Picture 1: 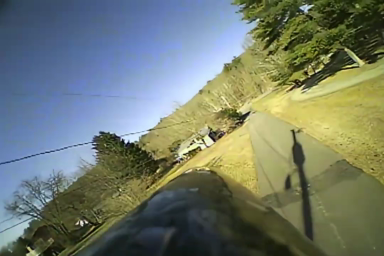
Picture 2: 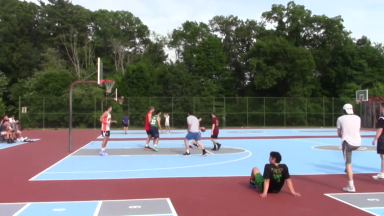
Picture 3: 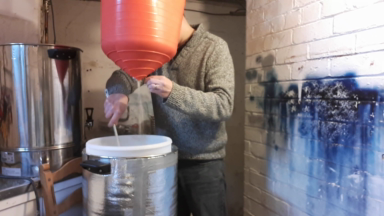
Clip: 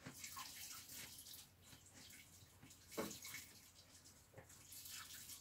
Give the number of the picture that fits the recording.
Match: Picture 3